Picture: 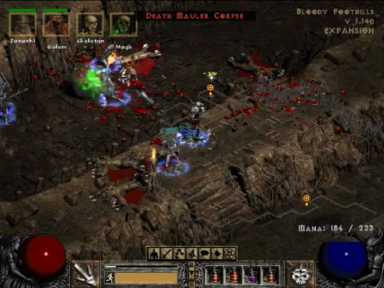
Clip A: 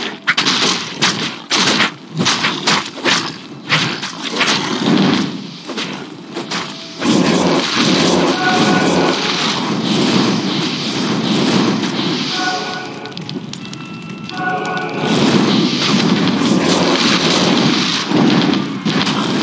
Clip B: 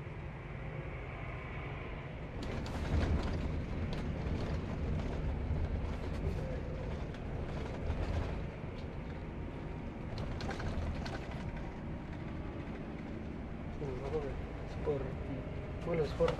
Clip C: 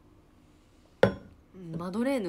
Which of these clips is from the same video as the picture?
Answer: A